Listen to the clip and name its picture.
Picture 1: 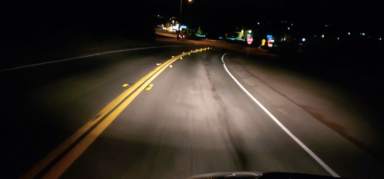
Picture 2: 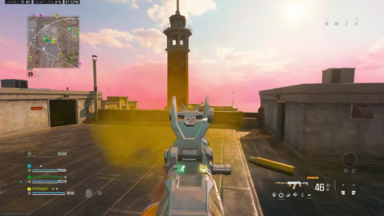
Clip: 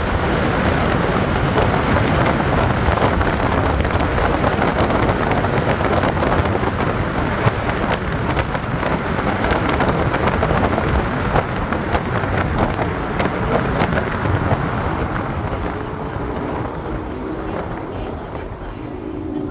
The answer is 1